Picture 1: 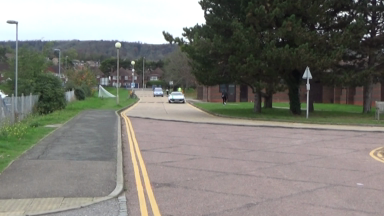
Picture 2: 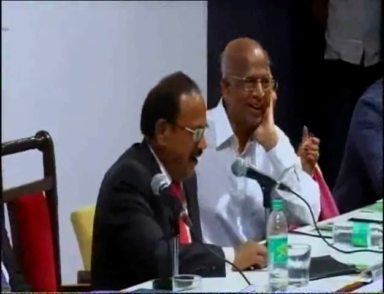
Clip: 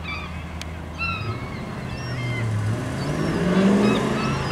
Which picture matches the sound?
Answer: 1